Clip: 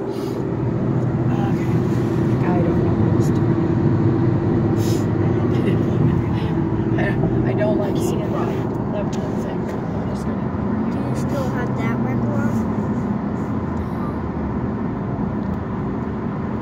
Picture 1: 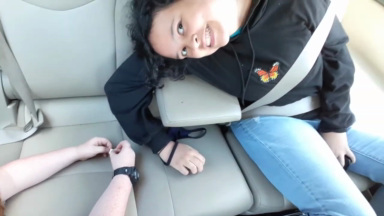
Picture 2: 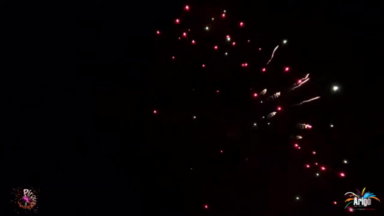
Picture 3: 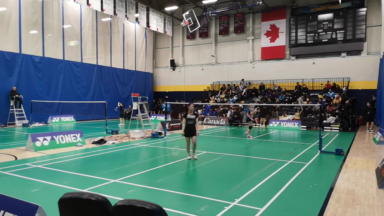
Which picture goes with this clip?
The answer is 1